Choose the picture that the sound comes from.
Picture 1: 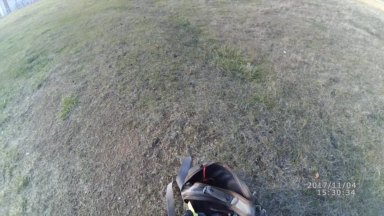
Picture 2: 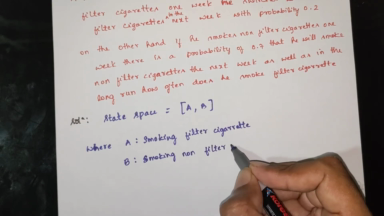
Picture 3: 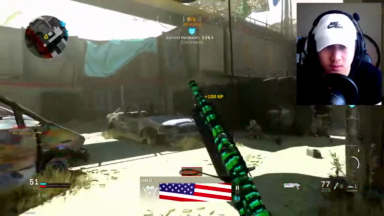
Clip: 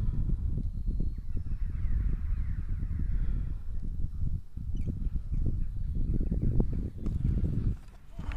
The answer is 1